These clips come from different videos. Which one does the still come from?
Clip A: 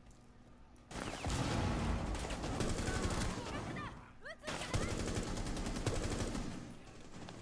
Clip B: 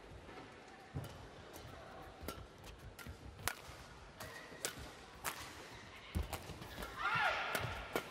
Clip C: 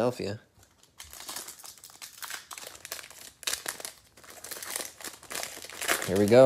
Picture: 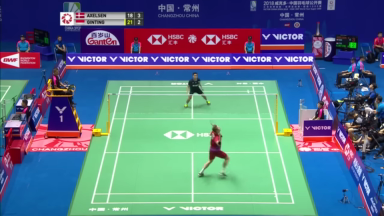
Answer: B